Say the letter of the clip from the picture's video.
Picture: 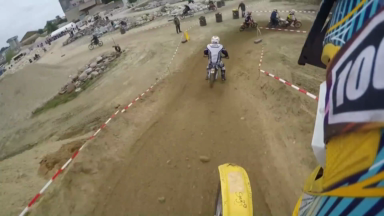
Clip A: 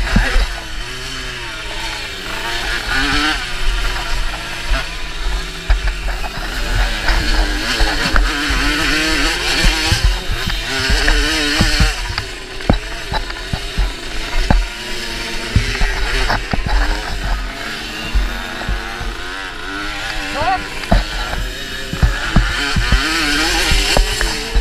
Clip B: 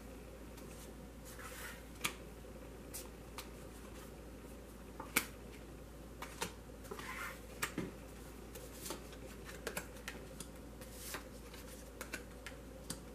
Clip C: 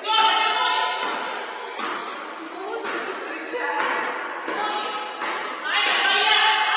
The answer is A